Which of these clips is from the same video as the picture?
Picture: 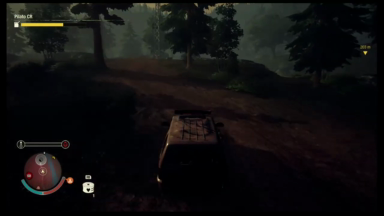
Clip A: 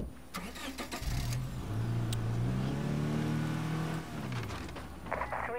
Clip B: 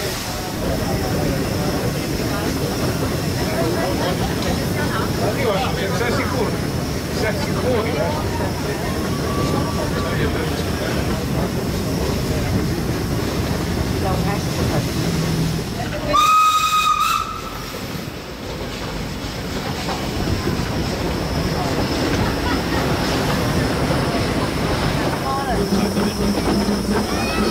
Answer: A